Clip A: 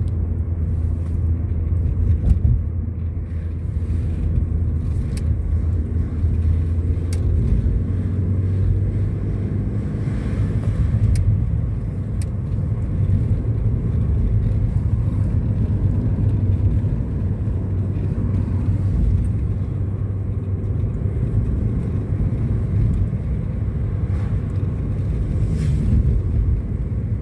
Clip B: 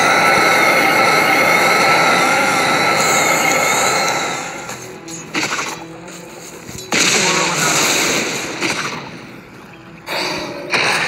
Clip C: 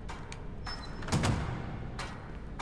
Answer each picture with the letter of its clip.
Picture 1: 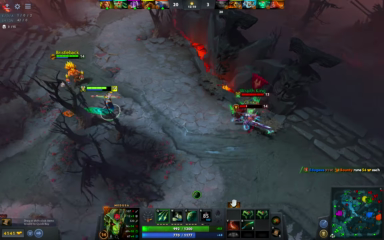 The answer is B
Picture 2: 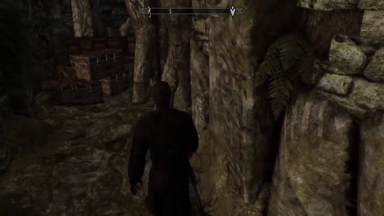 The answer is C